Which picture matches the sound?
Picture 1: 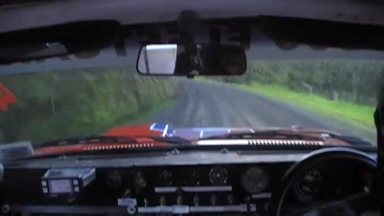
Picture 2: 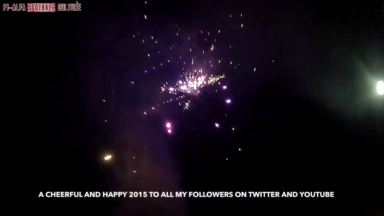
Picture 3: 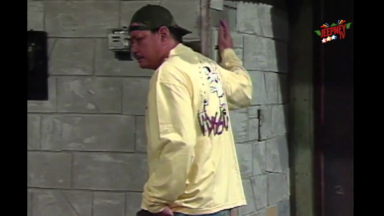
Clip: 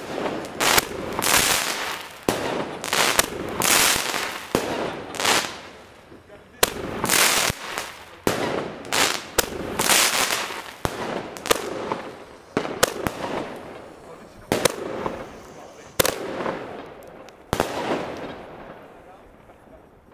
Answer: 2